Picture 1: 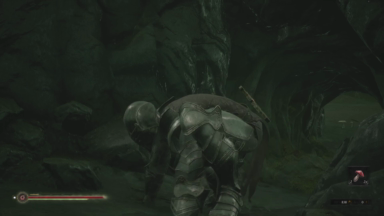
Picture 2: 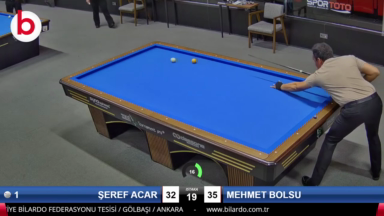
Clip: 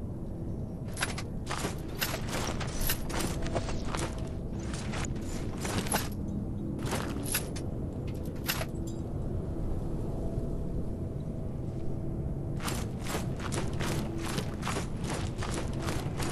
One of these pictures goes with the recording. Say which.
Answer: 1